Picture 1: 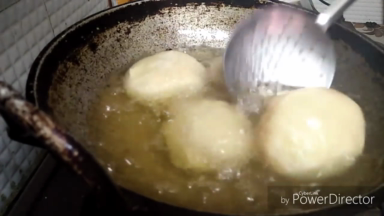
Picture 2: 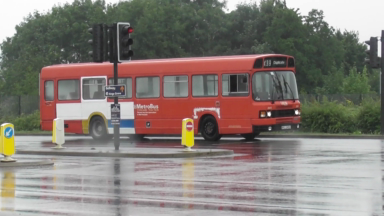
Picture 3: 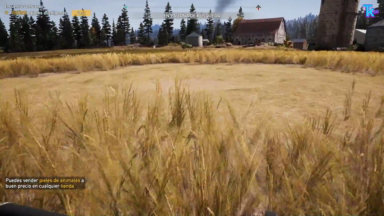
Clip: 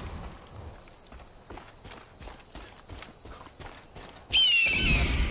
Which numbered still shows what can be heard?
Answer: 3